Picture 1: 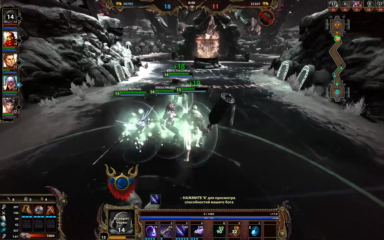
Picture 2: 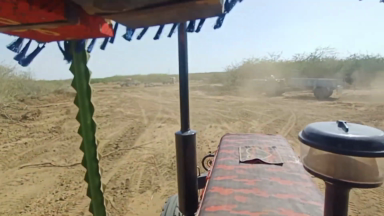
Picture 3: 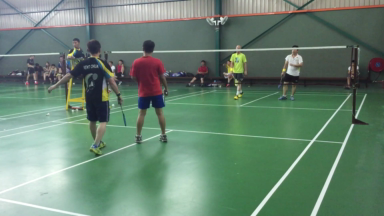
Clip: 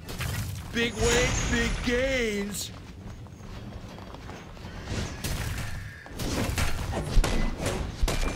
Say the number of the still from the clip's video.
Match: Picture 1